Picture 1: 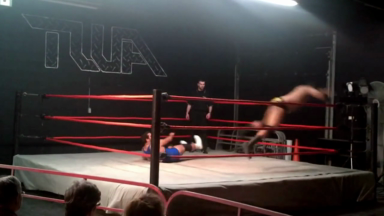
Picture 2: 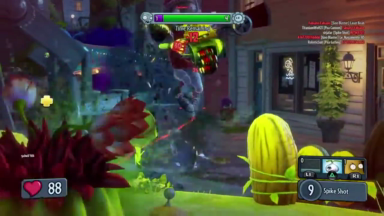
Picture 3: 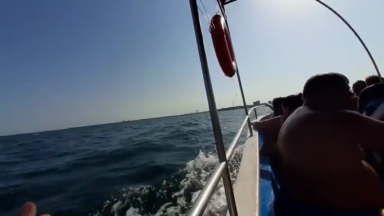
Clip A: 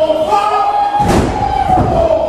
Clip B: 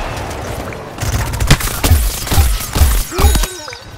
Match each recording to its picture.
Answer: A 1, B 2